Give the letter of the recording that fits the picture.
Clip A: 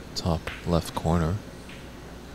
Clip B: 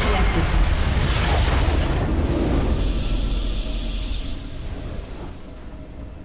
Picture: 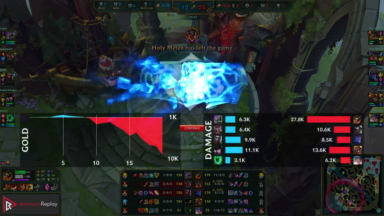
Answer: B